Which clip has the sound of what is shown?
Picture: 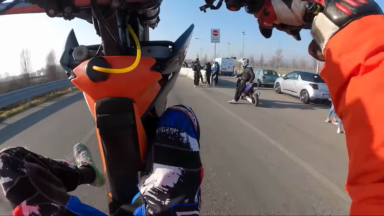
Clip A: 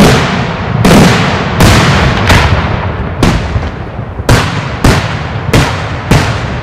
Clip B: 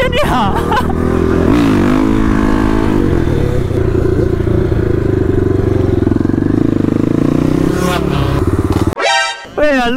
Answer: B